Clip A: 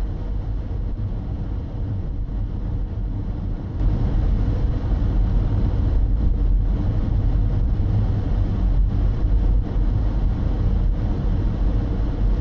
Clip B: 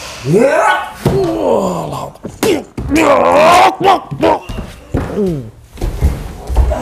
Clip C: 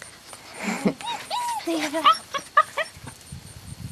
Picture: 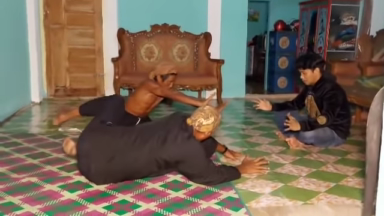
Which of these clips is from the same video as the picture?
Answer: B